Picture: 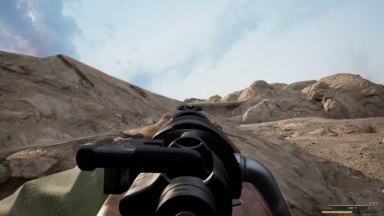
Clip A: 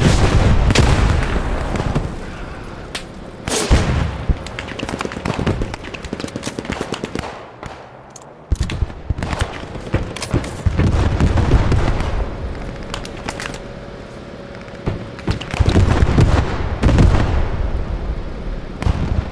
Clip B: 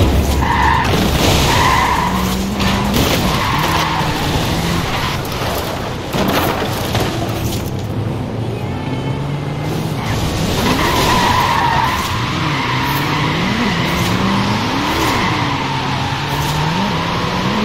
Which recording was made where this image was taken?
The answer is A